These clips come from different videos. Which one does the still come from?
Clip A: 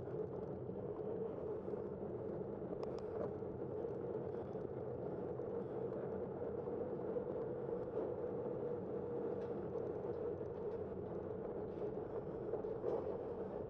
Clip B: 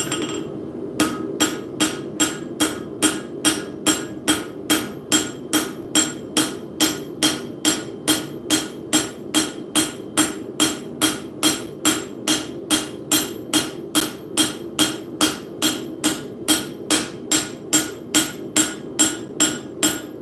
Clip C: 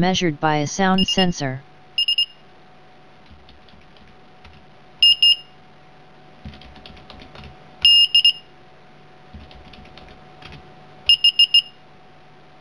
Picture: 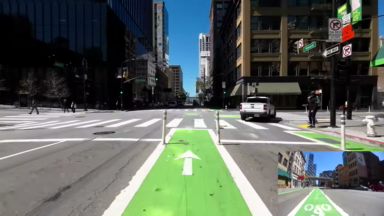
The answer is A